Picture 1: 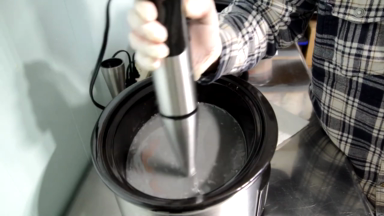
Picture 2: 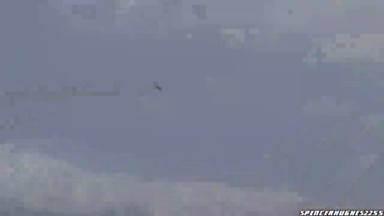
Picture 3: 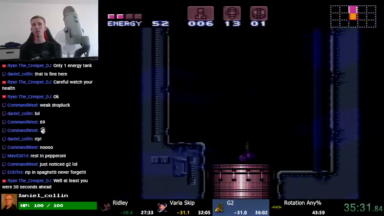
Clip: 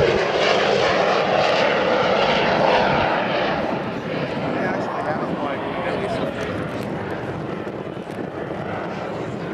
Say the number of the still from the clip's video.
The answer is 2